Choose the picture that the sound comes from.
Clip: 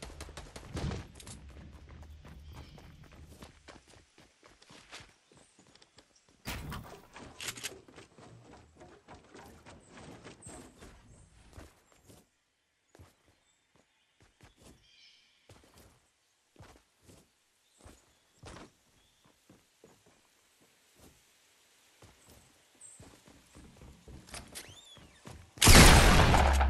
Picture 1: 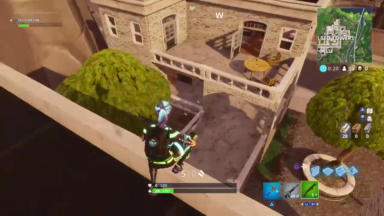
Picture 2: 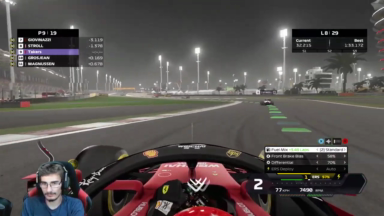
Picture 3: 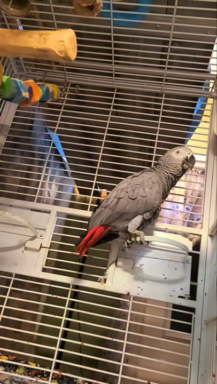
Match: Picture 1